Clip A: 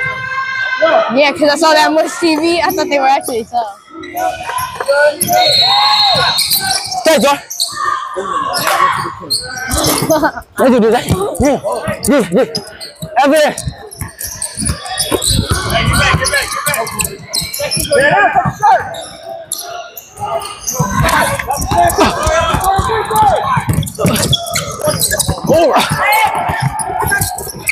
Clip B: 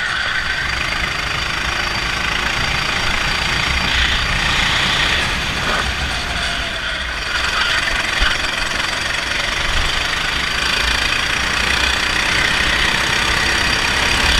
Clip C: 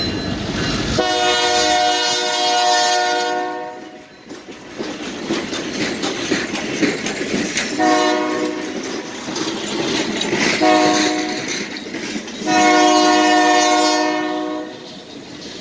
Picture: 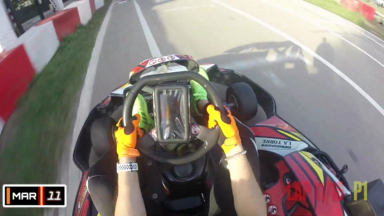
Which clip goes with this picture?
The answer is B